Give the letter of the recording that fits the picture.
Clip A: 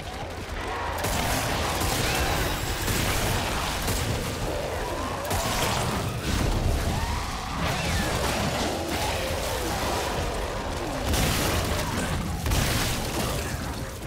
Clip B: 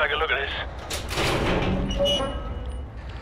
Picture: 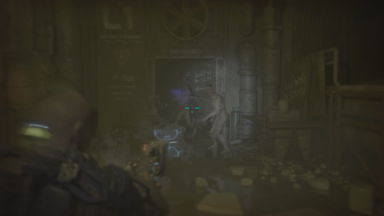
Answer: A